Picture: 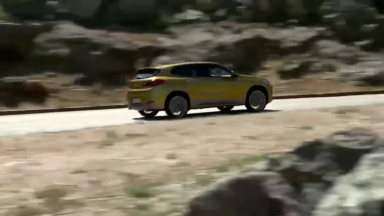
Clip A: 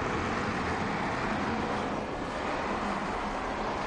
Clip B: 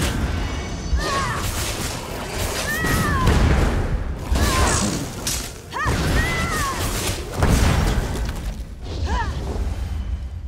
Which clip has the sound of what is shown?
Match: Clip A